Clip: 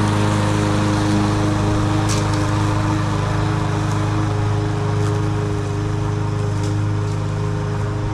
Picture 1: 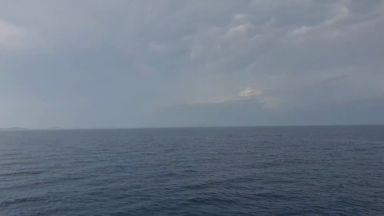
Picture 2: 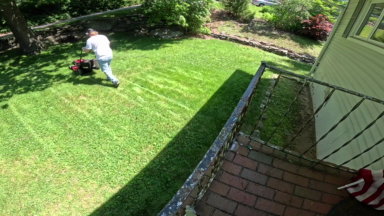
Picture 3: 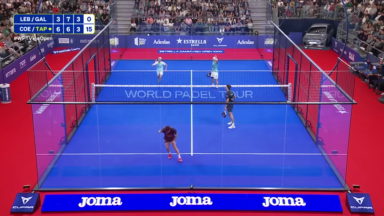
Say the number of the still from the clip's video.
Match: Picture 2